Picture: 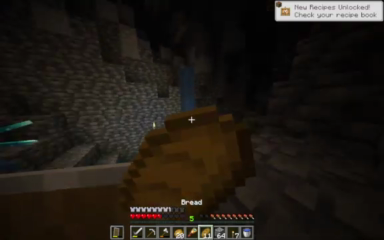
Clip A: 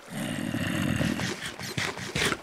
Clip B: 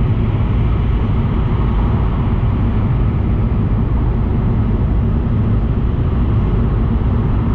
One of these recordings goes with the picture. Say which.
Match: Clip A